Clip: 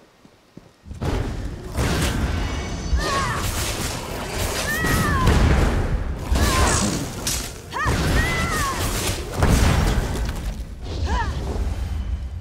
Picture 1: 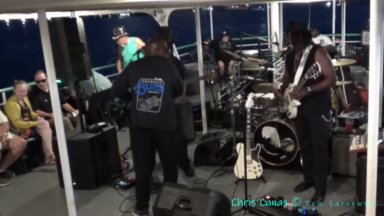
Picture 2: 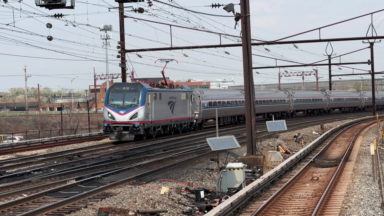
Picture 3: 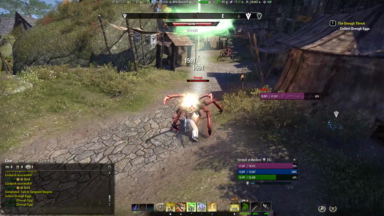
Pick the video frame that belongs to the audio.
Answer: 3